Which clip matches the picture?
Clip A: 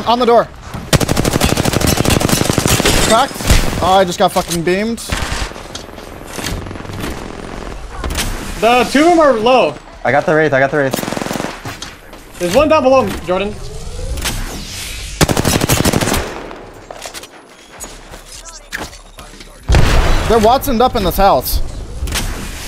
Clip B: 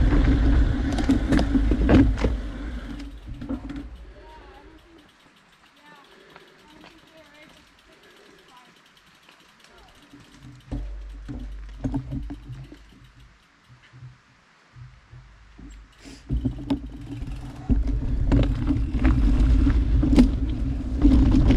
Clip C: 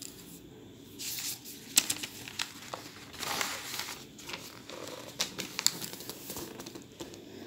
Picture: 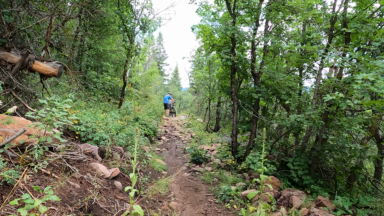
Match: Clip B